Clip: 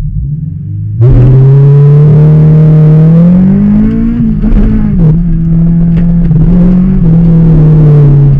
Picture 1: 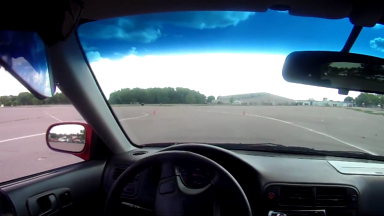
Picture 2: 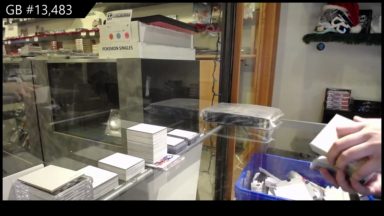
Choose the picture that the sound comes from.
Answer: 1